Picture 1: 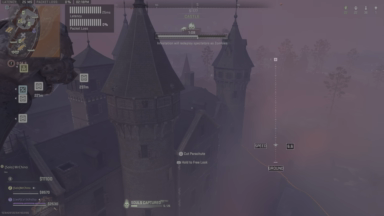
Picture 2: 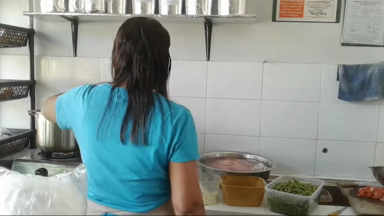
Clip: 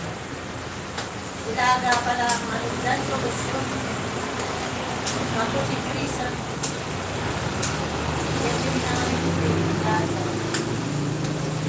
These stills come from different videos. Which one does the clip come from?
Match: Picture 2